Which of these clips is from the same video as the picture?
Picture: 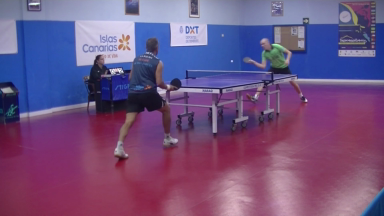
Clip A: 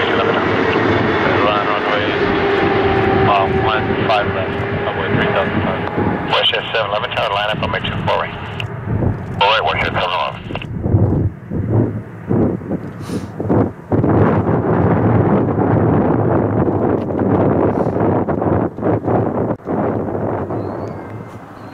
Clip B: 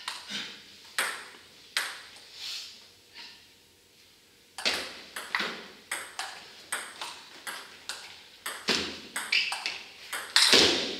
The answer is B